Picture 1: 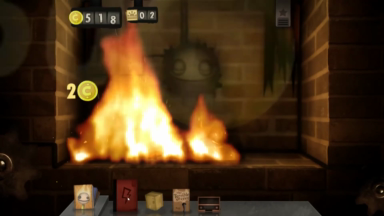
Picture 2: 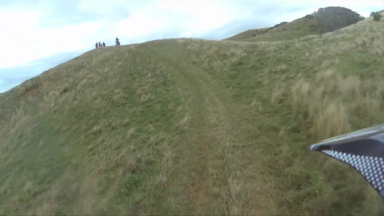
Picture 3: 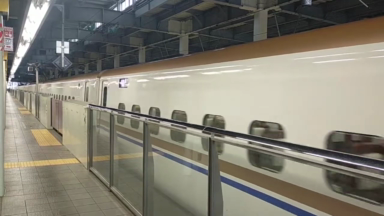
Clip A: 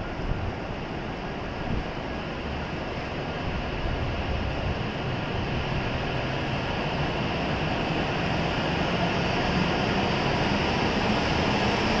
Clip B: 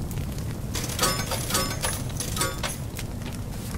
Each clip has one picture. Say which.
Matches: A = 3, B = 1